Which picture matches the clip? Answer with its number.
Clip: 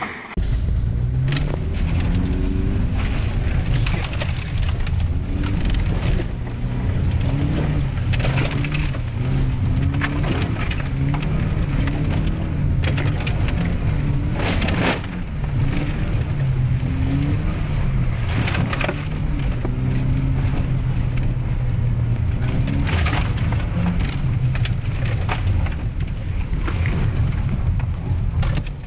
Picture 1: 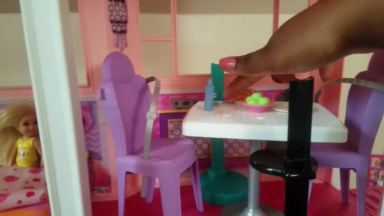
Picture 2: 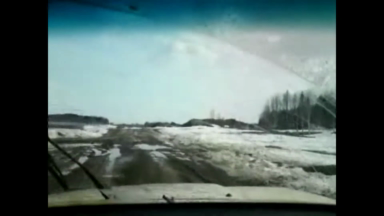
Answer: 2